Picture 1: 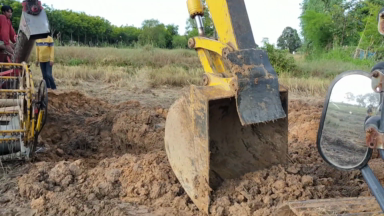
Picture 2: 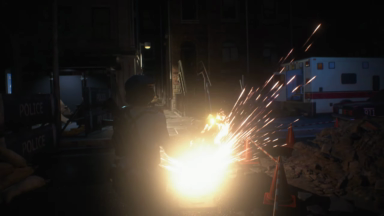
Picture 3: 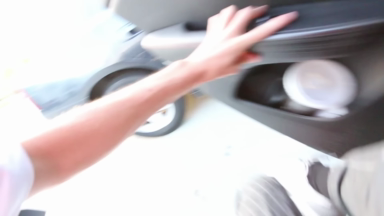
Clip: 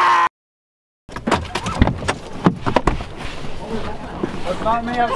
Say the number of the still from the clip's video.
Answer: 3